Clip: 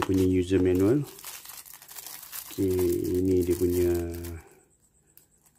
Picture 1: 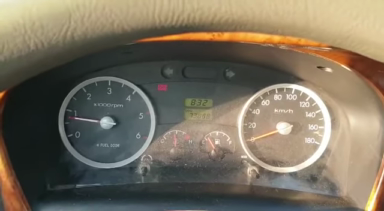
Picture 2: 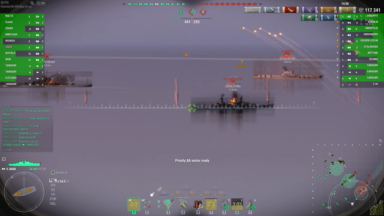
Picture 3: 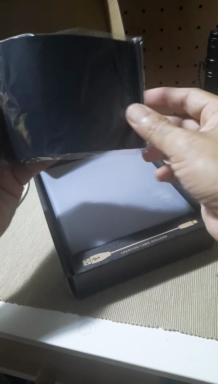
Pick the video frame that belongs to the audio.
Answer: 3